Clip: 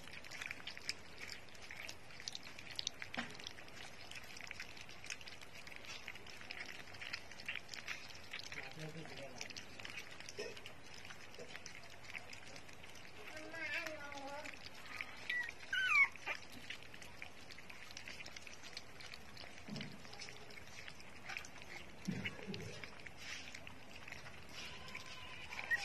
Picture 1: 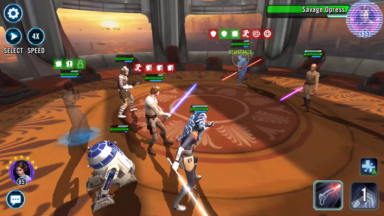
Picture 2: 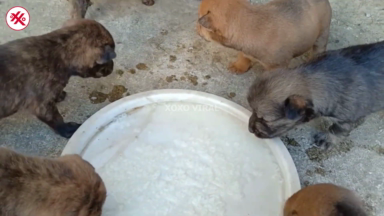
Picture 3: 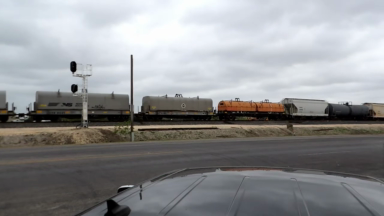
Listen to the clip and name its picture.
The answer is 2